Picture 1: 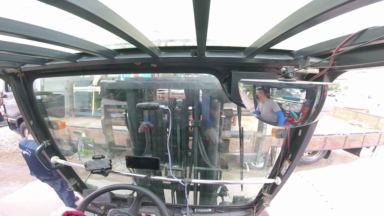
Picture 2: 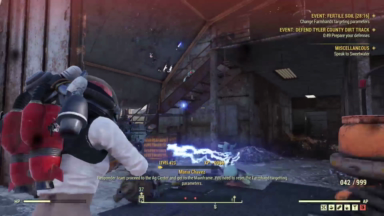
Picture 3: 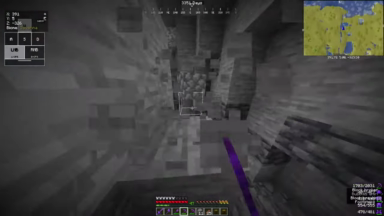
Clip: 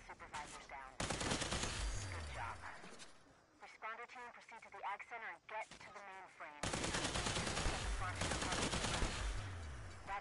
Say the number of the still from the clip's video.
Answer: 2